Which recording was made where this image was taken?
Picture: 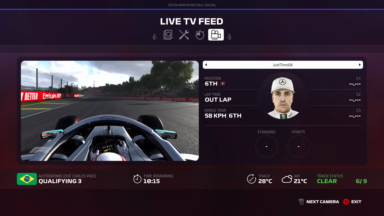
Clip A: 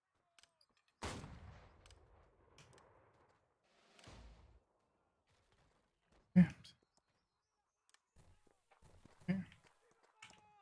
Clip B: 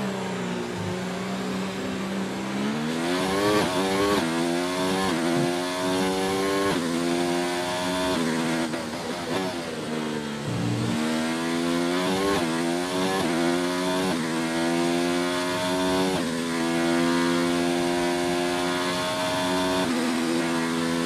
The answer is B